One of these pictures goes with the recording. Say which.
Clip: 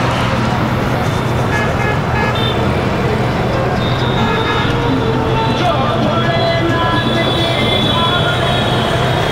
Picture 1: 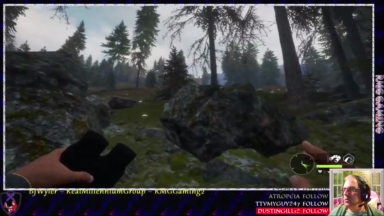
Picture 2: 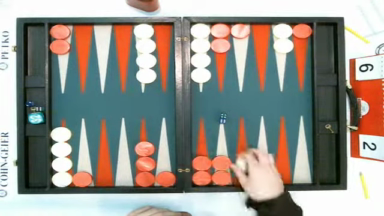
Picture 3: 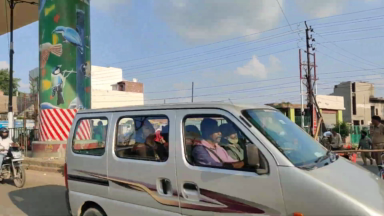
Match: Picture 3